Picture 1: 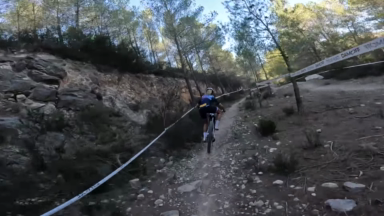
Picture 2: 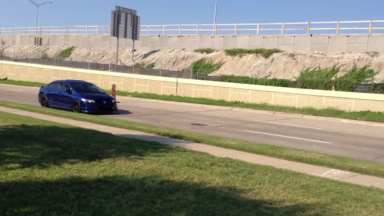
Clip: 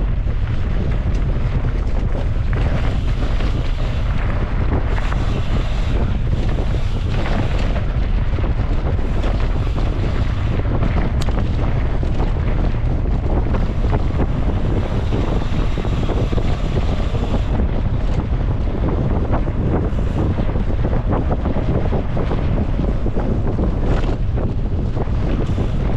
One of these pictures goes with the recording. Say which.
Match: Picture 1